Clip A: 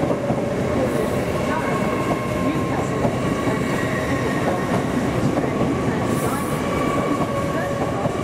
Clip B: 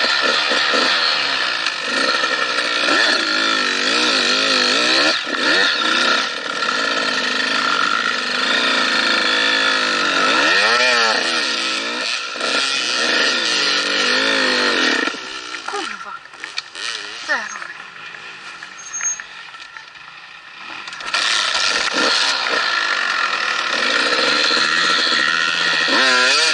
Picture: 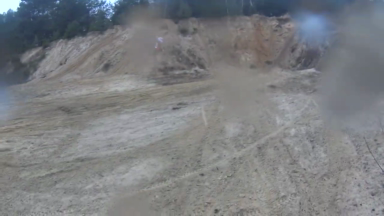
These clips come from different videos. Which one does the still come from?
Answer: B